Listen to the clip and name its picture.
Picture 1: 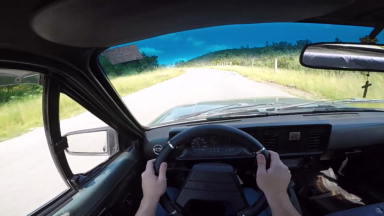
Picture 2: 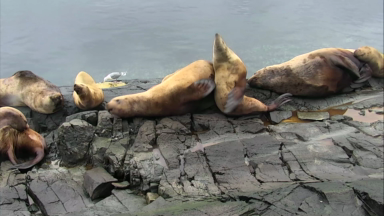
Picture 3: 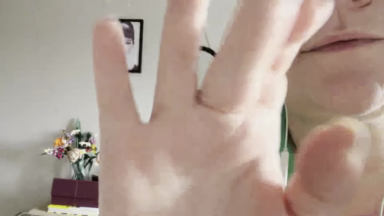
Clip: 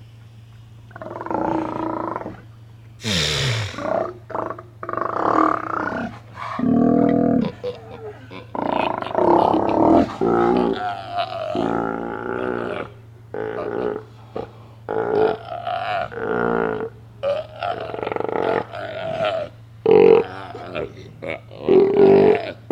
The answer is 2